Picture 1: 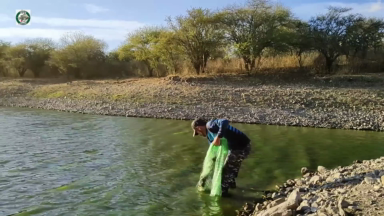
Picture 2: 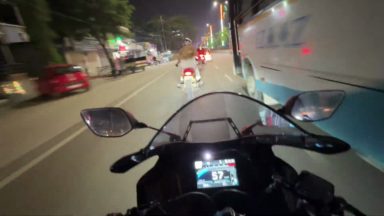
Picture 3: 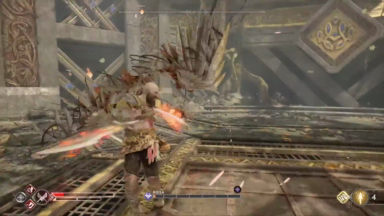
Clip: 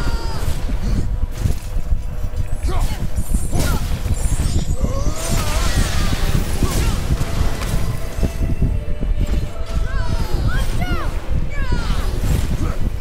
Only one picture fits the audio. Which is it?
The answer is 3